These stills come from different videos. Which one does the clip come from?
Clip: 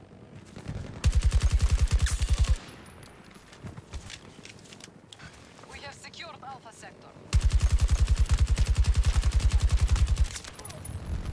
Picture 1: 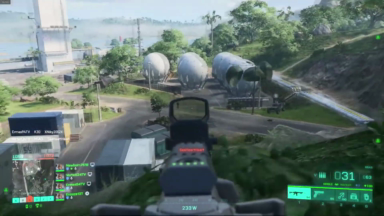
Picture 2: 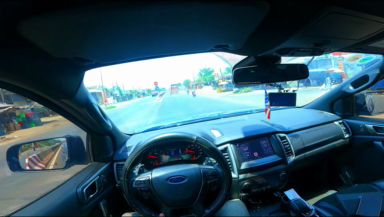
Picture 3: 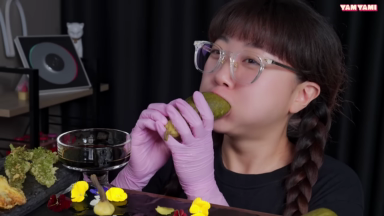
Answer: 1